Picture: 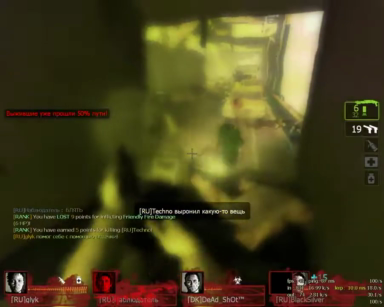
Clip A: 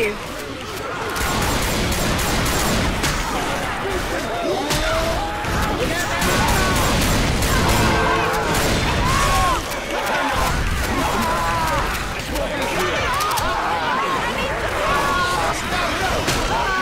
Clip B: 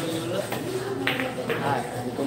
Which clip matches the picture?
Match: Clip A